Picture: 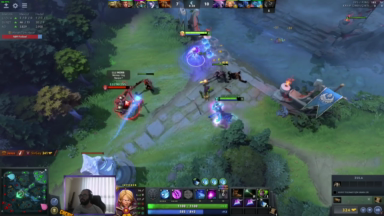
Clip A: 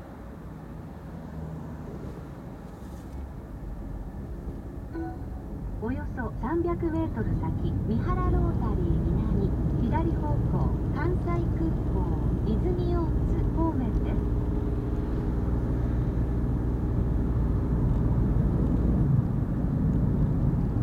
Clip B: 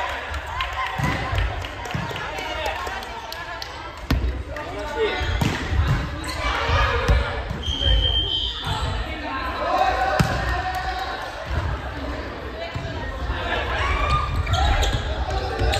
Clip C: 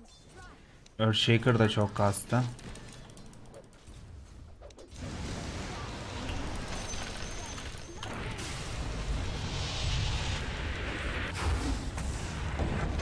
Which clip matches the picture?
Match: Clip C